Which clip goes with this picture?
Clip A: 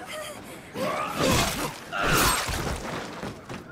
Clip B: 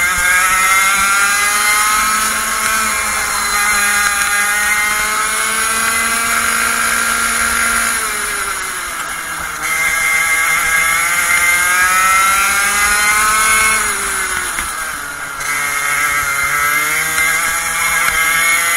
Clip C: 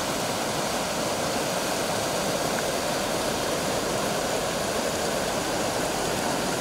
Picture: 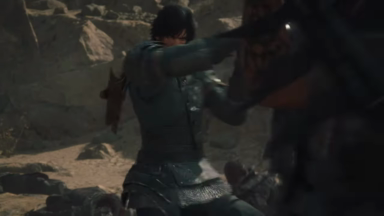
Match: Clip A